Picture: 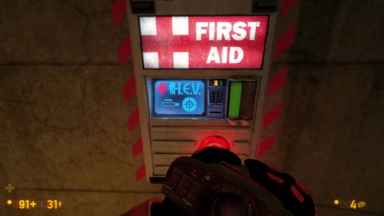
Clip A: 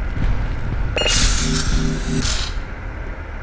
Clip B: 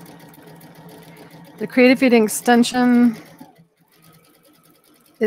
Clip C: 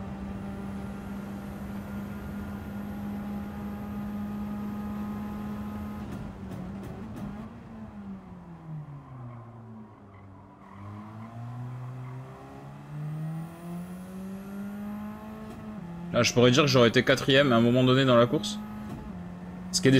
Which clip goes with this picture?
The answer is A